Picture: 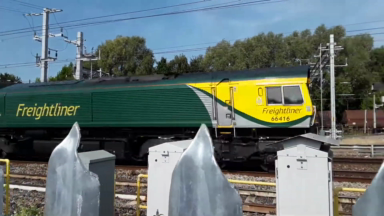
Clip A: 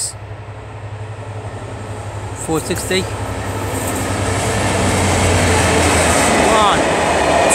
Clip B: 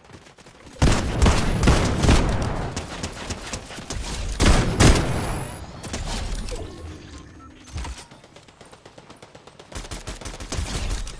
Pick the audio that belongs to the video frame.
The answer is A